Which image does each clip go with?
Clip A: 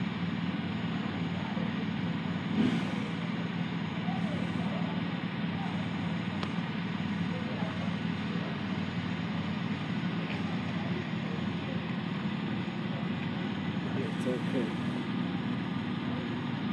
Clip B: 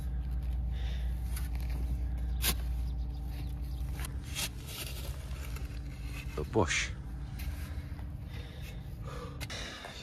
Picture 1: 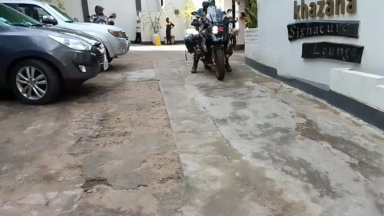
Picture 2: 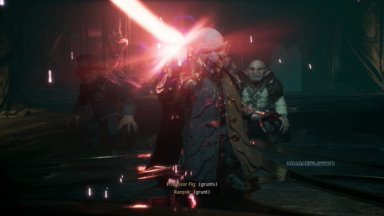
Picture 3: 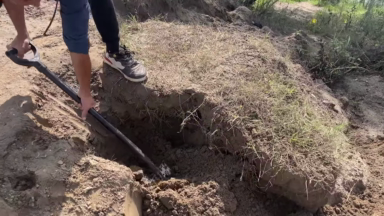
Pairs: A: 1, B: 3